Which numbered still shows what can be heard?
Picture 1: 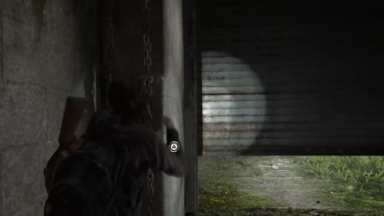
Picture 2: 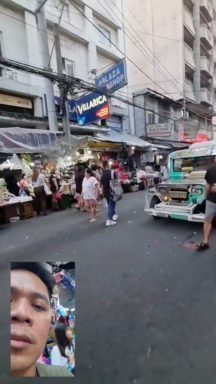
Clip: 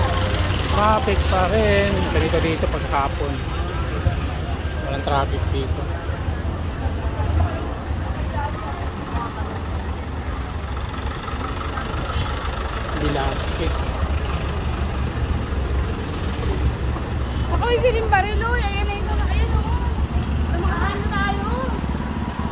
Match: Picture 2